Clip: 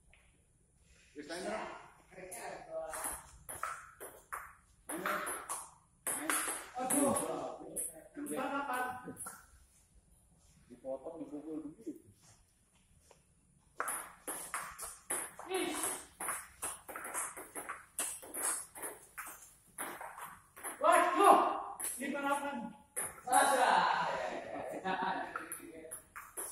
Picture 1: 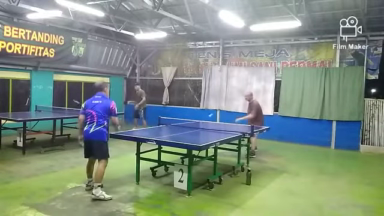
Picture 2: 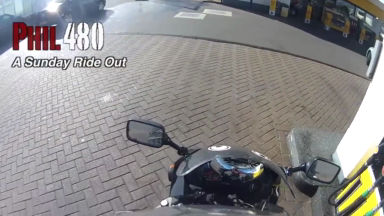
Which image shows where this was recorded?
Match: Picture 1